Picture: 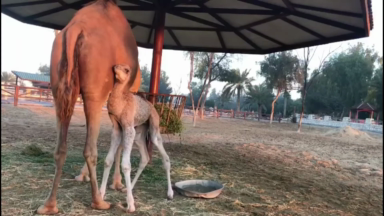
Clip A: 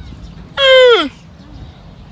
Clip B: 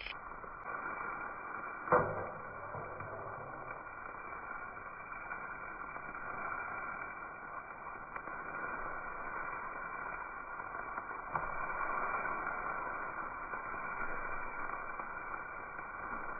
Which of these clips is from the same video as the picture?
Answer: A